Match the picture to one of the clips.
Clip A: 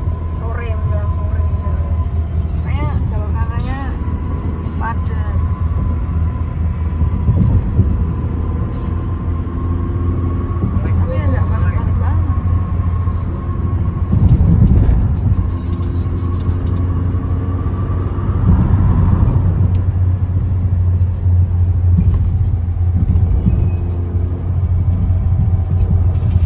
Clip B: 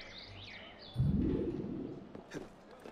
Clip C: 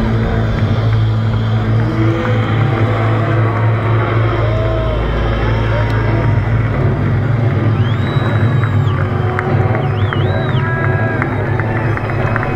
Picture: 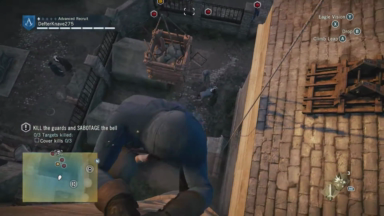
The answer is B